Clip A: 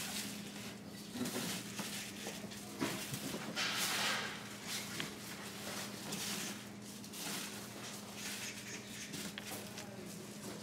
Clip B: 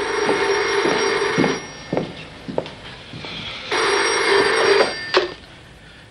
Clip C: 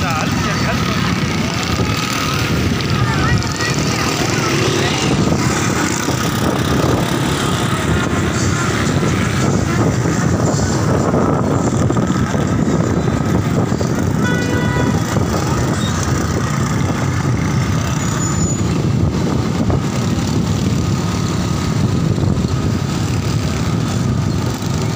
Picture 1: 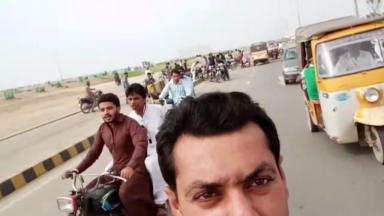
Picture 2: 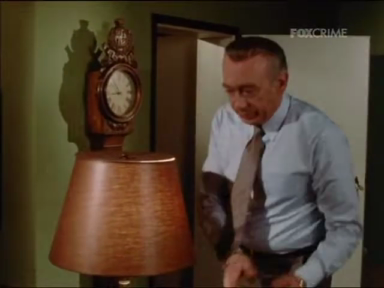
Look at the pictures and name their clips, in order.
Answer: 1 C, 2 B